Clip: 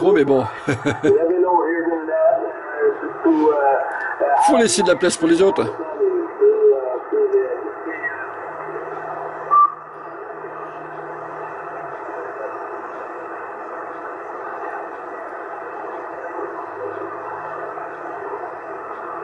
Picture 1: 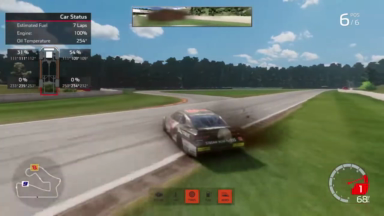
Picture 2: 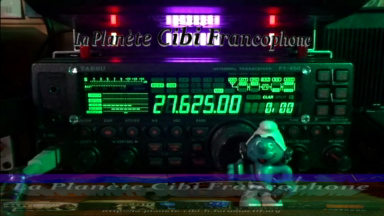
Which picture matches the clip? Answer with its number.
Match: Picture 2